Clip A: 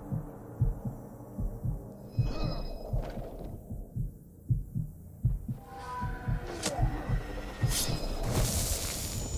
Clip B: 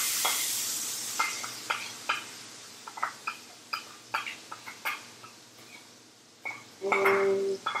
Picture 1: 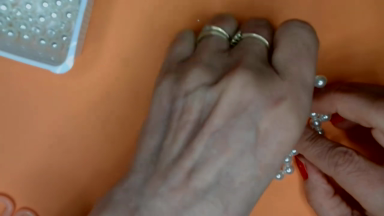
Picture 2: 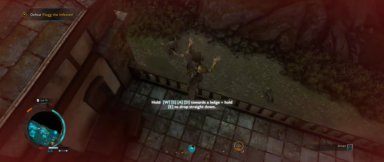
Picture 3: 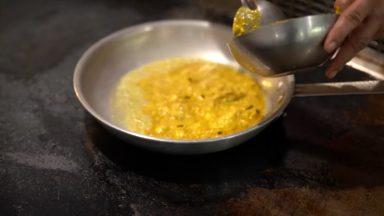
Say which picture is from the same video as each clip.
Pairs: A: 2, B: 3